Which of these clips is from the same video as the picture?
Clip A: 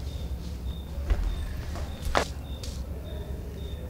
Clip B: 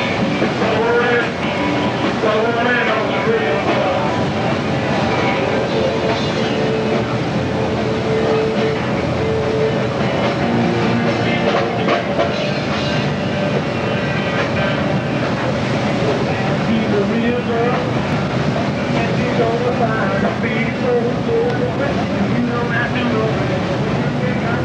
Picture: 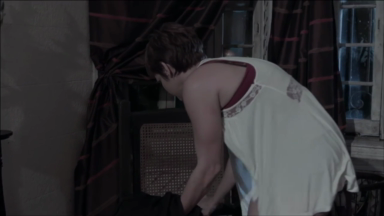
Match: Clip A